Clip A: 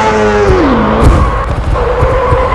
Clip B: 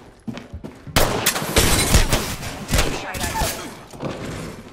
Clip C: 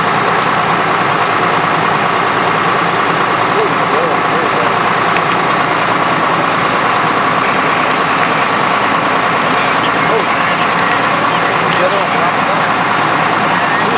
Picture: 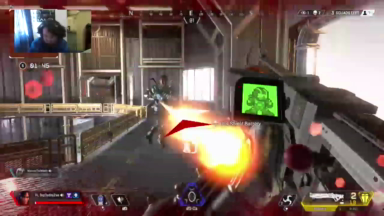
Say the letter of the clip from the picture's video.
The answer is B